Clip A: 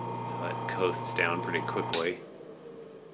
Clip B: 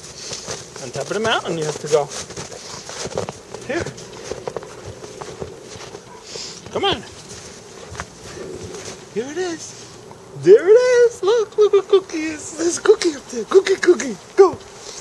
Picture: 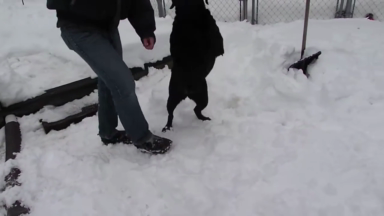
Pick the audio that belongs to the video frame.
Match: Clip B